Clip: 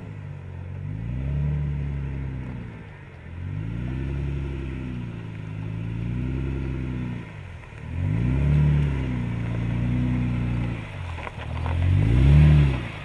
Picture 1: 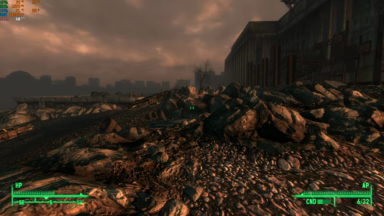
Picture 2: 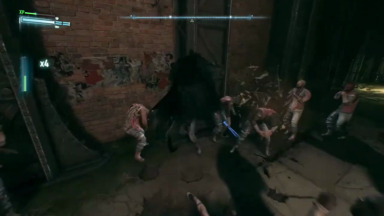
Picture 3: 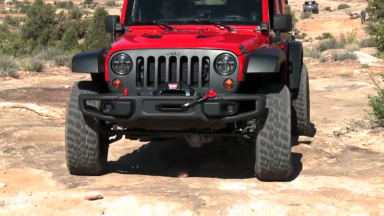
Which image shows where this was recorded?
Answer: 3